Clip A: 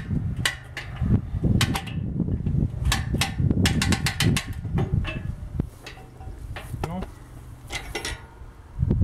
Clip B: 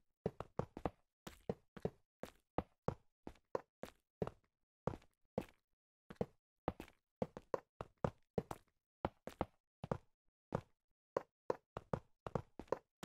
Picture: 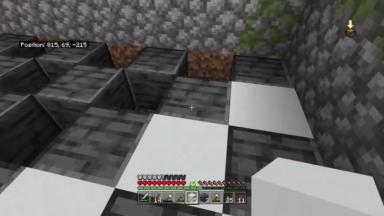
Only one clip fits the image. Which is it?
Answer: B